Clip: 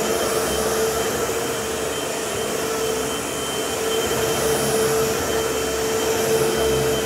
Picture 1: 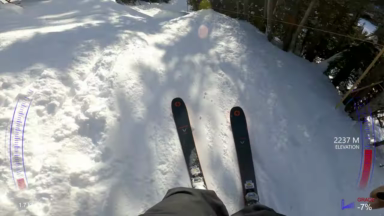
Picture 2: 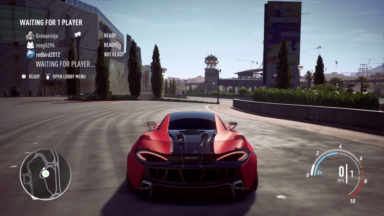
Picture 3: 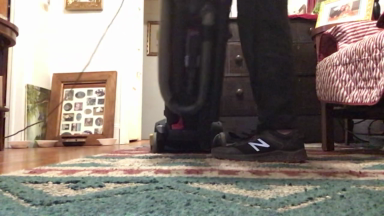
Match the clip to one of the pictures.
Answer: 3